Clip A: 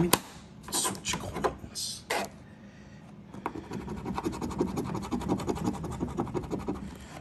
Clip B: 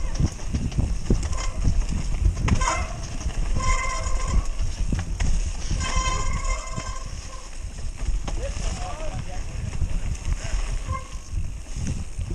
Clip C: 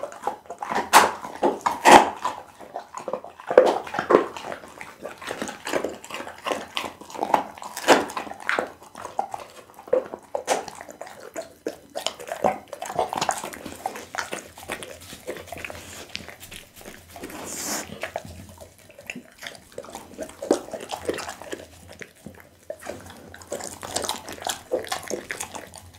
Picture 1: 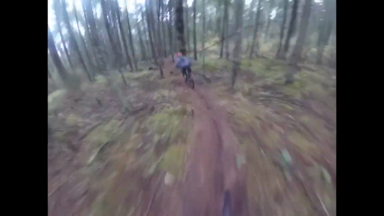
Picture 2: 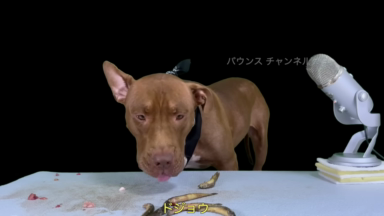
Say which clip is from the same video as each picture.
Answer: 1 B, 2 C